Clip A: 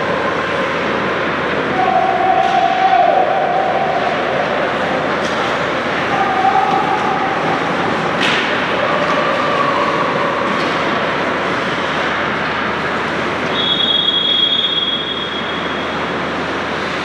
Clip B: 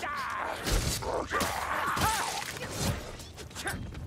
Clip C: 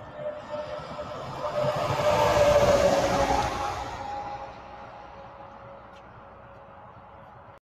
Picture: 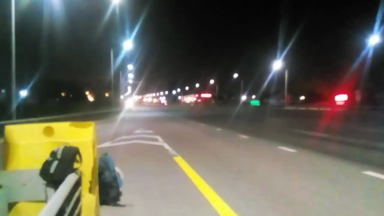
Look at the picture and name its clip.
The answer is C